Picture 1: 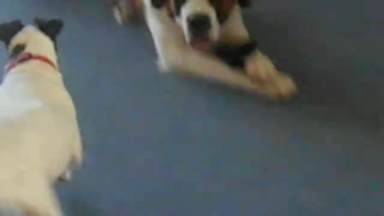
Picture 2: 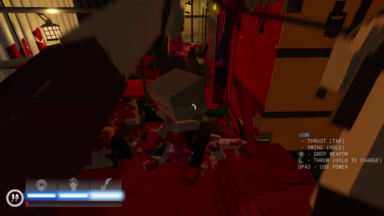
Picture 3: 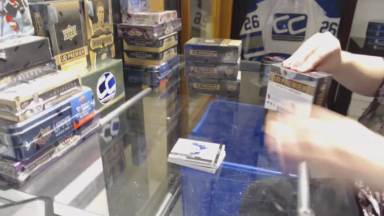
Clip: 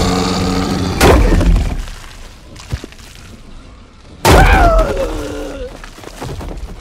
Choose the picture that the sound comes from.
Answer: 2